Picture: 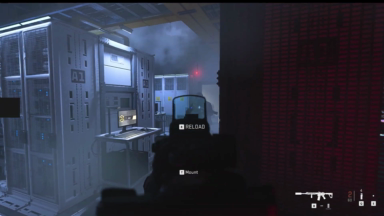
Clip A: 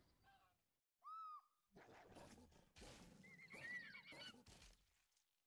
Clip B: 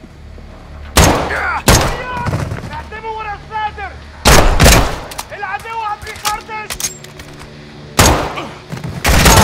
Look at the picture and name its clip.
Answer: B